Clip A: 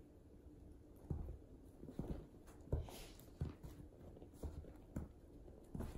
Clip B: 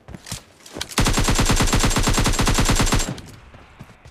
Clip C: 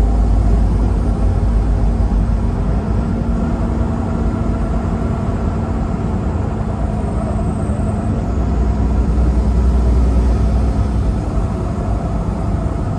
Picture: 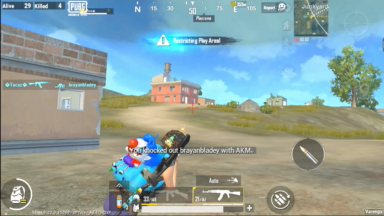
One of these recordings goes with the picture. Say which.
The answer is B